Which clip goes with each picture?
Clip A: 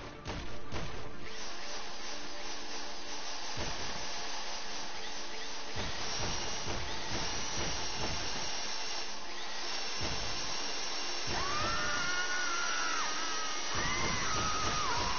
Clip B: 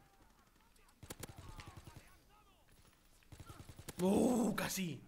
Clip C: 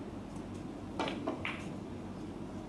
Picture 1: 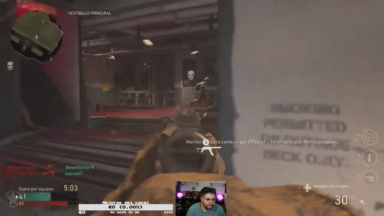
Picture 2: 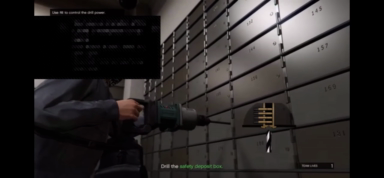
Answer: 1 B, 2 A